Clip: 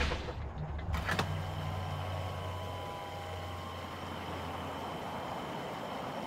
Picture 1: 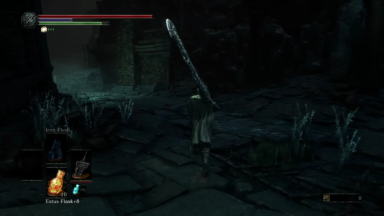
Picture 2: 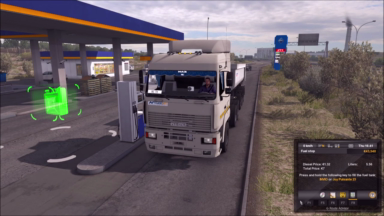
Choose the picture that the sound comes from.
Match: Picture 2